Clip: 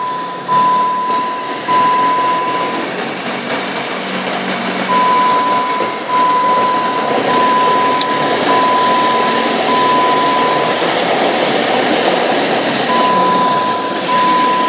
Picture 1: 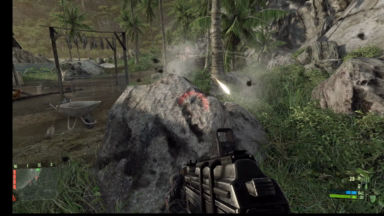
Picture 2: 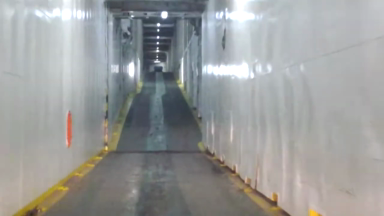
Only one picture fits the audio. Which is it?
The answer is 2